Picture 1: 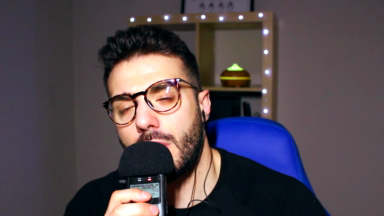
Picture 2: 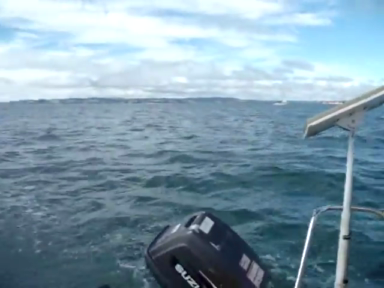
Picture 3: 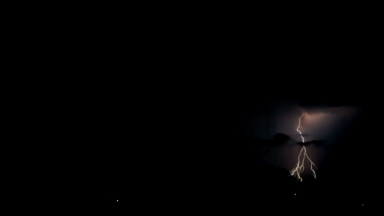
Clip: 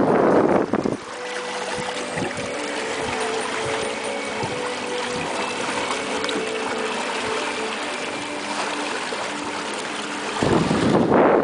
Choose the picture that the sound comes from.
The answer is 2